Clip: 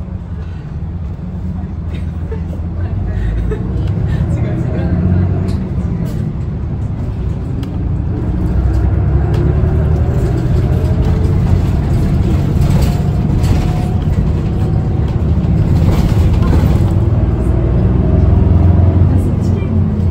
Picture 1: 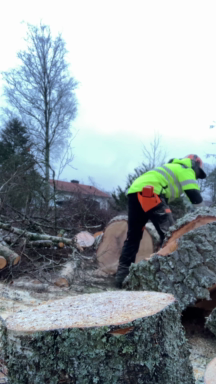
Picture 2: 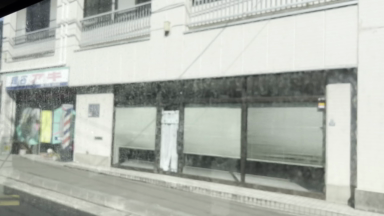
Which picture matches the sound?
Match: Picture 2